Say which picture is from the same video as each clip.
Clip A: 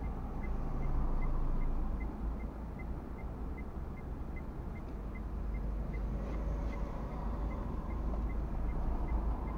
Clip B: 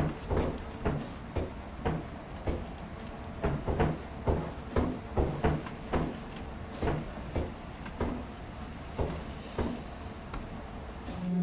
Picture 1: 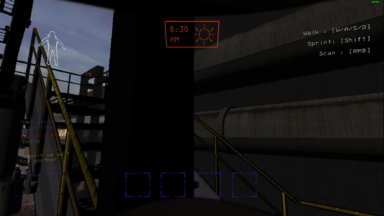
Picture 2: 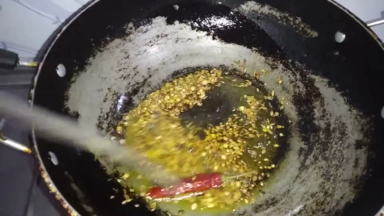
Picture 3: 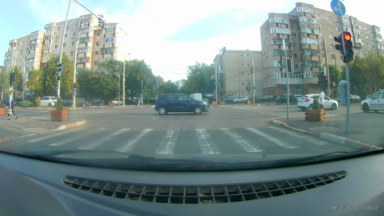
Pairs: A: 3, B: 1